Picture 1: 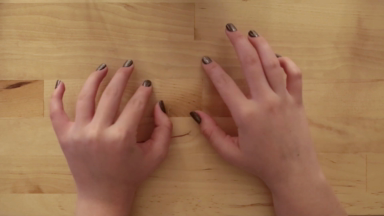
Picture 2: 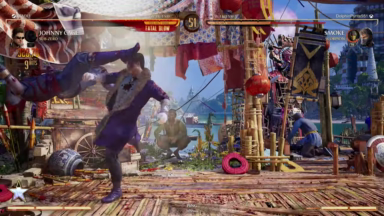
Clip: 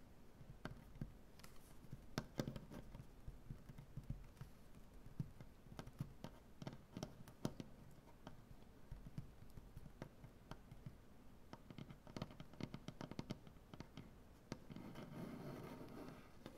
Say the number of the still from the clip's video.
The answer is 1